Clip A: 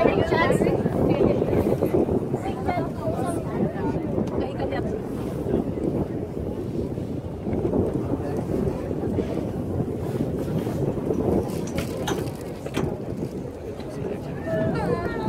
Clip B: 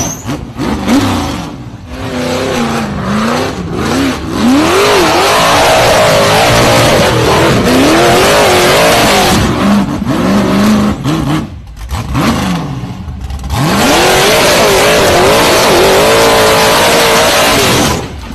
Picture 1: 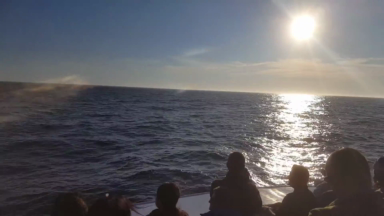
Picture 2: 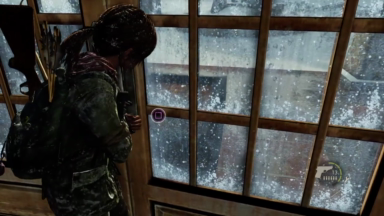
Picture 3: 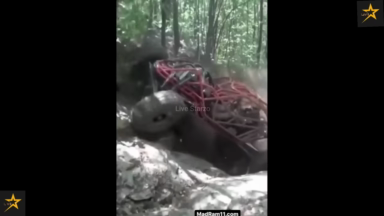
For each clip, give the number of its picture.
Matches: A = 1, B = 3